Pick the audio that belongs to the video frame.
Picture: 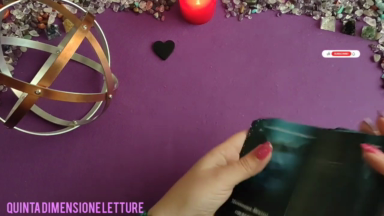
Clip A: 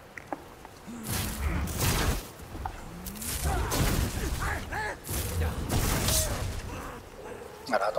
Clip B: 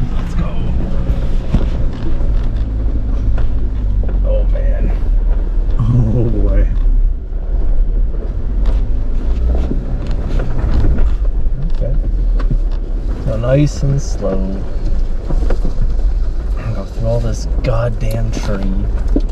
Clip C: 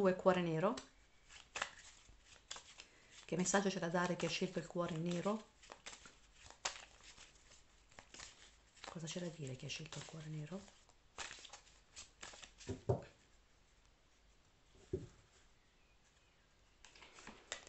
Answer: C